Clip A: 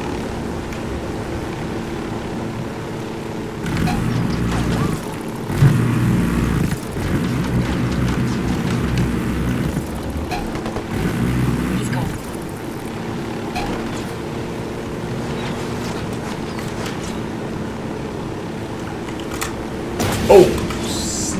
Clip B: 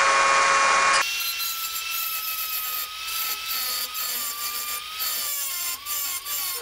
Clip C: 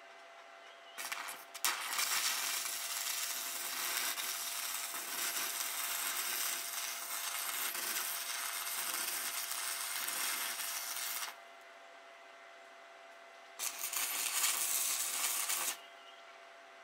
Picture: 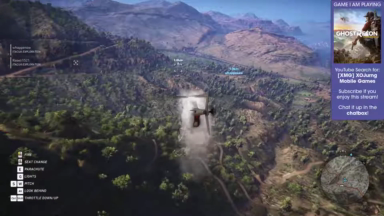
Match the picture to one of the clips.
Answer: A